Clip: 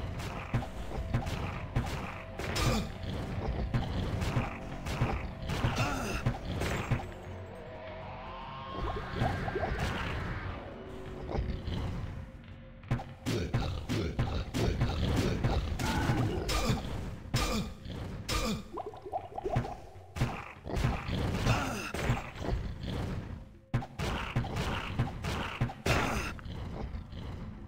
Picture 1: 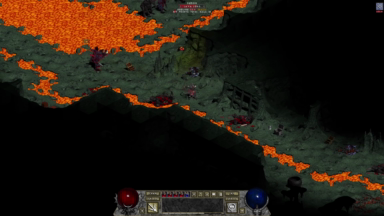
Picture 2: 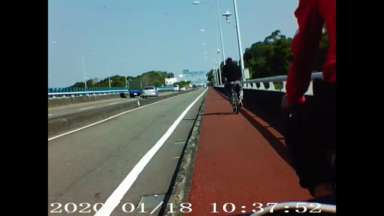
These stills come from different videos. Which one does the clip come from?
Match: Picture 1